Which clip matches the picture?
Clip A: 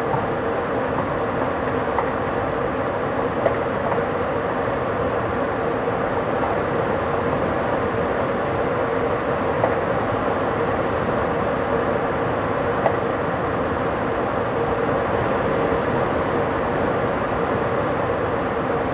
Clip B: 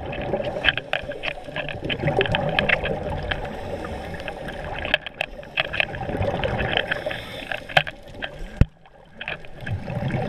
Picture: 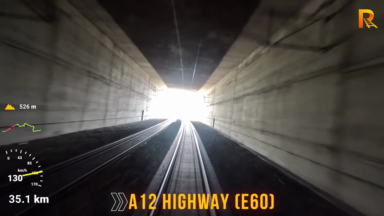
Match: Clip A